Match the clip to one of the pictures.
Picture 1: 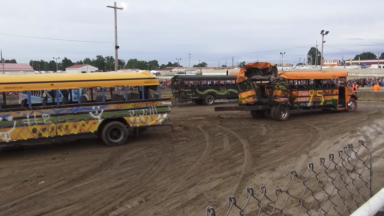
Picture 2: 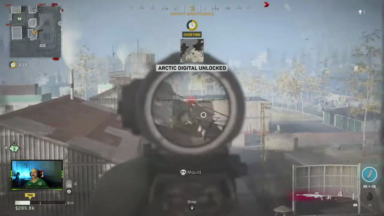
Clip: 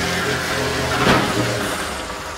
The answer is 1